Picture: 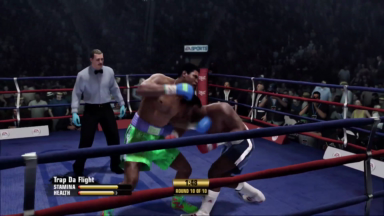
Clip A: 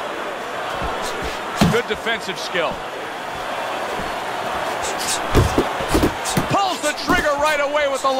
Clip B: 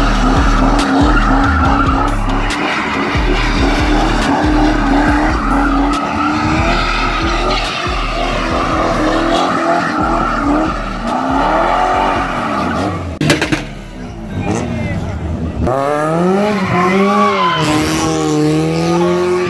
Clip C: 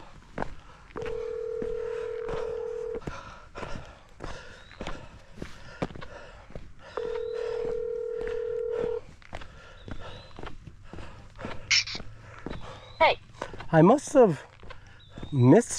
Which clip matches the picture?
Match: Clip A